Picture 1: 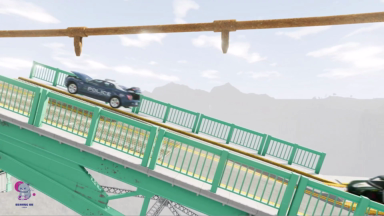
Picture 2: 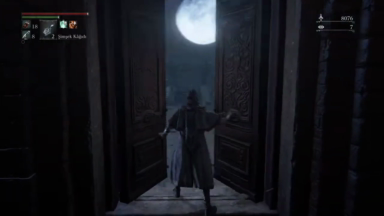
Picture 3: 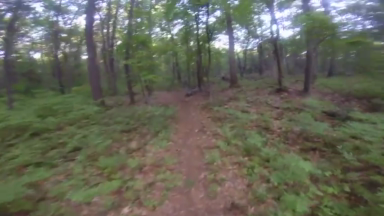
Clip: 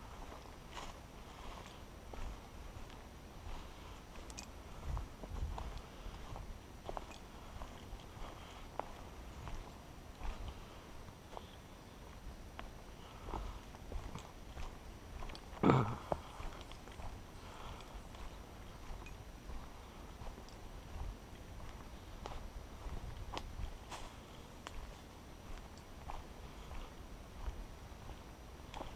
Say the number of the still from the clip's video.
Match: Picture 3